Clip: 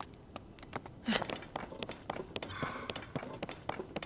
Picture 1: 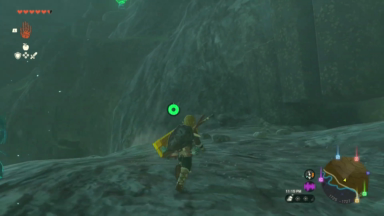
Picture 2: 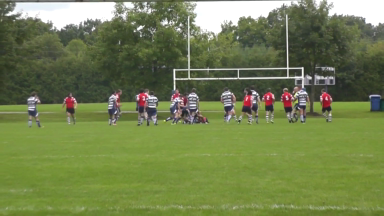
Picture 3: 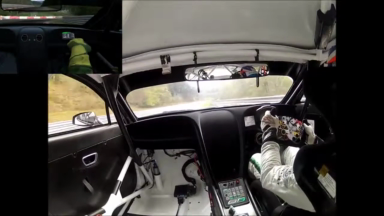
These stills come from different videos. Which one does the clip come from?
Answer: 1